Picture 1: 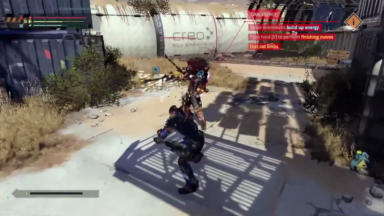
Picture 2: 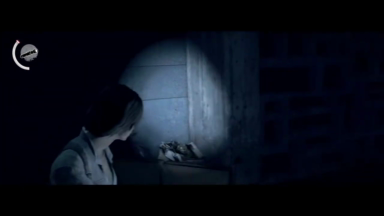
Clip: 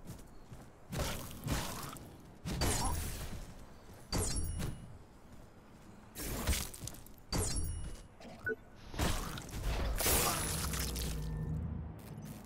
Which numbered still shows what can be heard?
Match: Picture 1